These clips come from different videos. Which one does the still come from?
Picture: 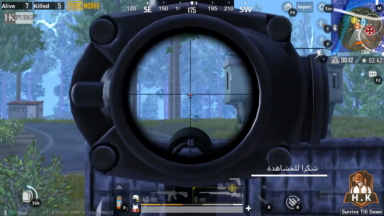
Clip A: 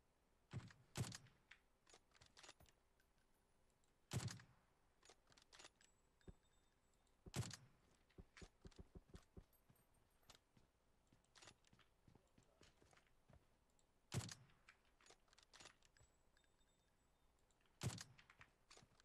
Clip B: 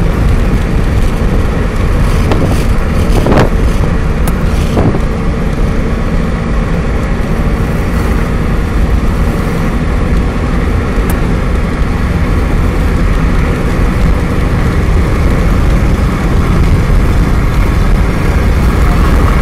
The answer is A